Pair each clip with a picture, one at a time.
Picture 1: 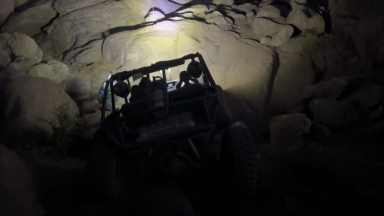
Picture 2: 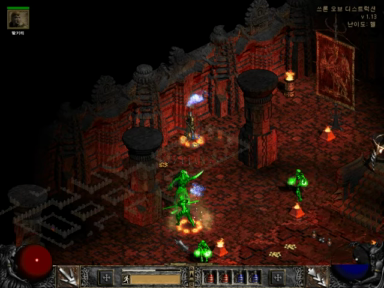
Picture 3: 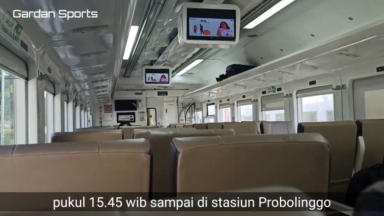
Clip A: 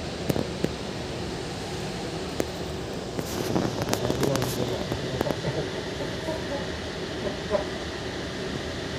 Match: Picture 3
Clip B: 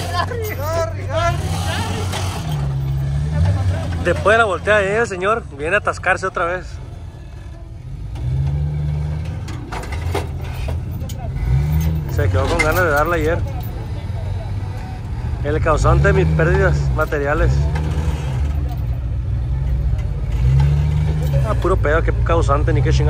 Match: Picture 1